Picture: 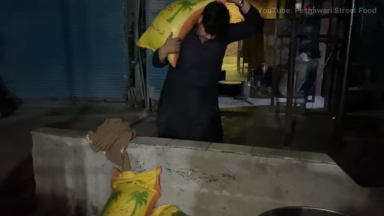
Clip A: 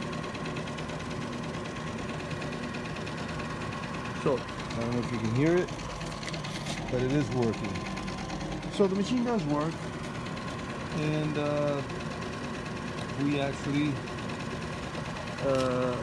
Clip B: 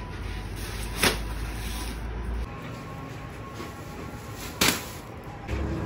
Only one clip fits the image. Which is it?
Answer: B